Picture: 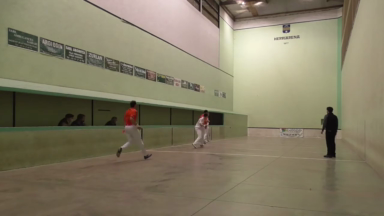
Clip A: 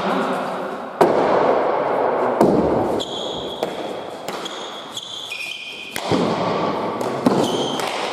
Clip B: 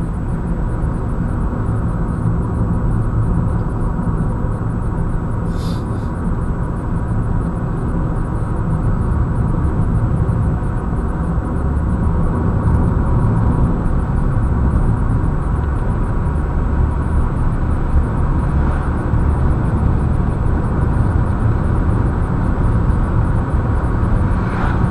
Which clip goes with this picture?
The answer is A